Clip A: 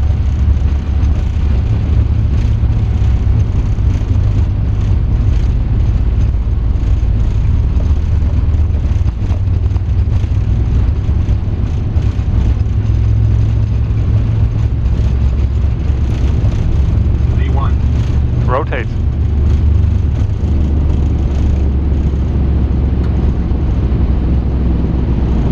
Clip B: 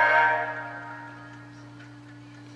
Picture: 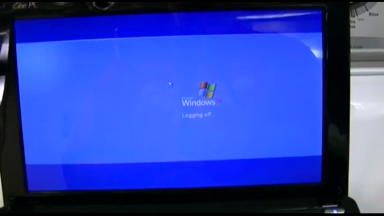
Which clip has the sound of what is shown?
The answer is B